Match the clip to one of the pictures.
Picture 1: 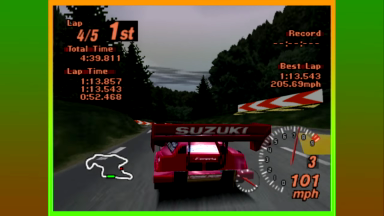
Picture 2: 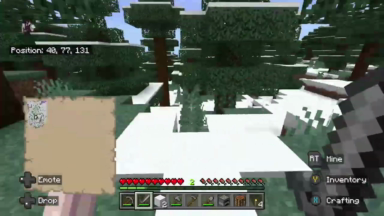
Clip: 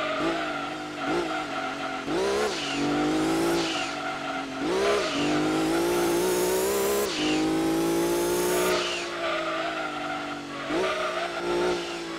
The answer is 1